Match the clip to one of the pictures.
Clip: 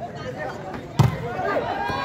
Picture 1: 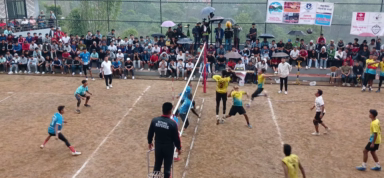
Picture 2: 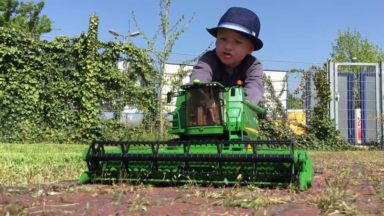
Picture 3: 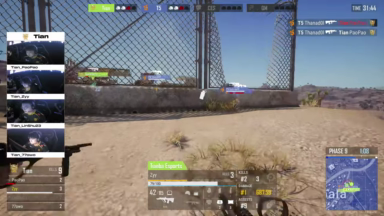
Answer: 1